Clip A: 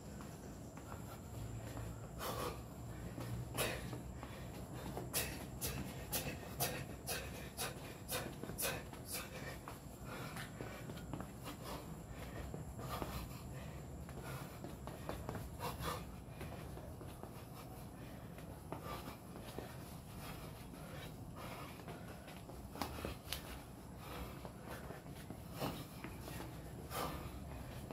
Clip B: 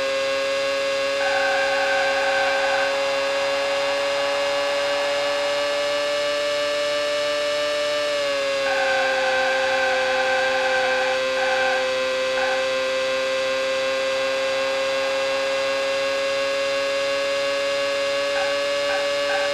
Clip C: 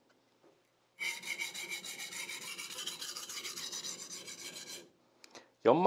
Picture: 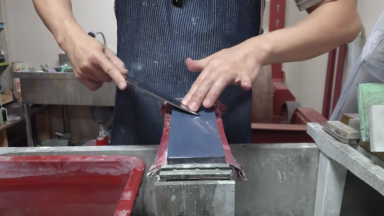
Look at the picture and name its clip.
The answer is C